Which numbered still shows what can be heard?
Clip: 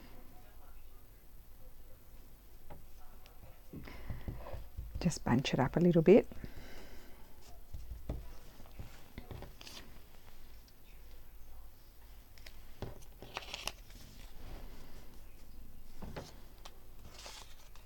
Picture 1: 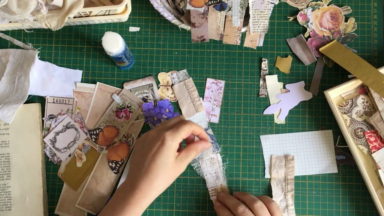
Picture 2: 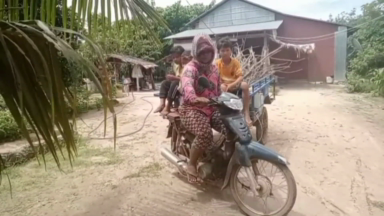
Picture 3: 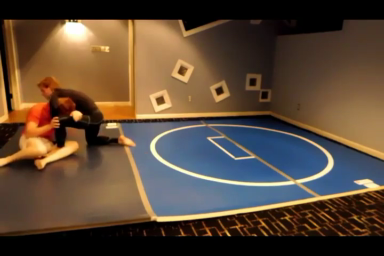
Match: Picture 1